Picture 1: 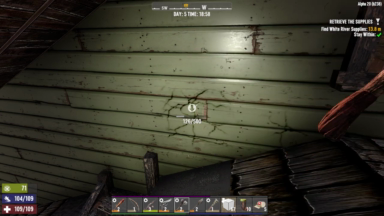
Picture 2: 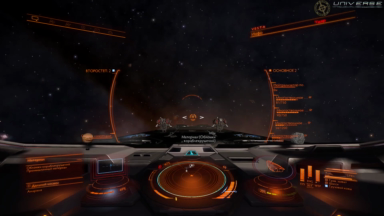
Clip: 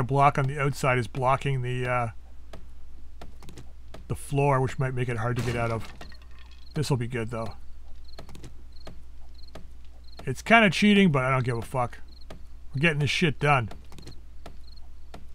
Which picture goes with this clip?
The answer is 1